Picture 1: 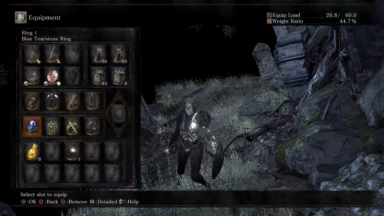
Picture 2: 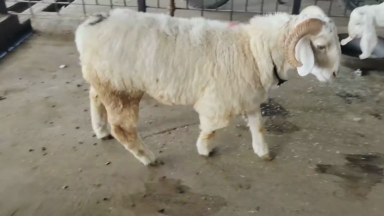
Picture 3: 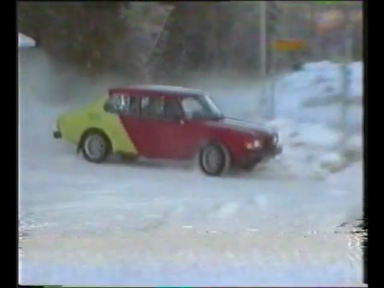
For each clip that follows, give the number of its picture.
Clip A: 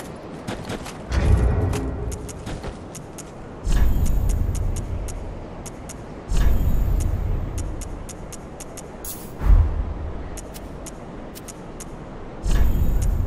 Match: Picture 1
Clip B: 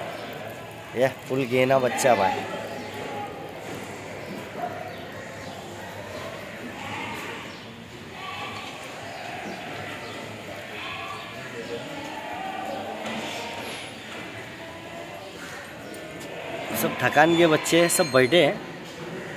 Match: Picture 2